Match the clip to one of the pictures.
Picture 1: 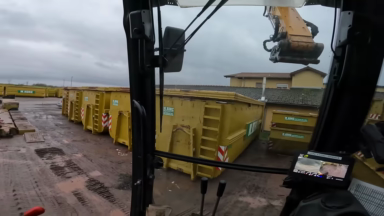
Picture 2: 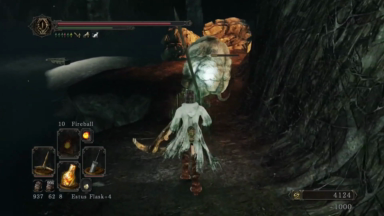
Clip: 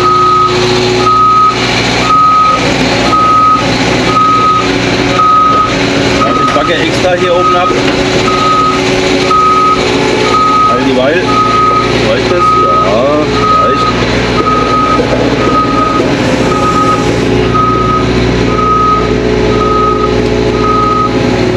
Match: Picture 1